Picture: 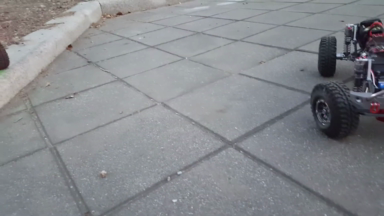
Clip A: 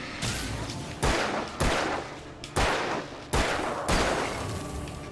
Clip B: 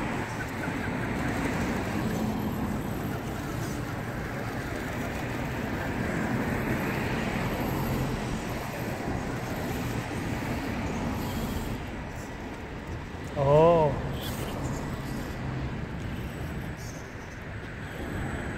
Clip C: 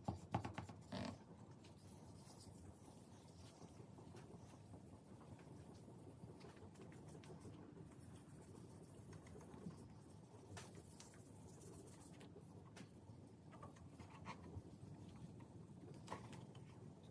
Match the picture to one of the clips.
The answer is B